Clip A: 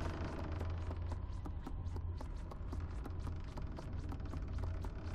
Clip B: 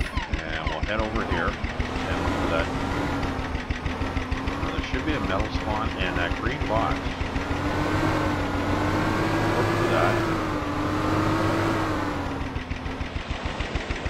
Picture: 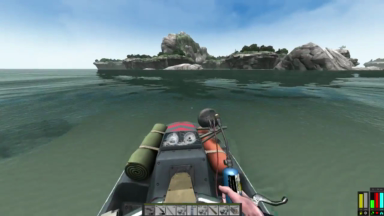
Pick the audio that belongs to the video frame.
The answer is B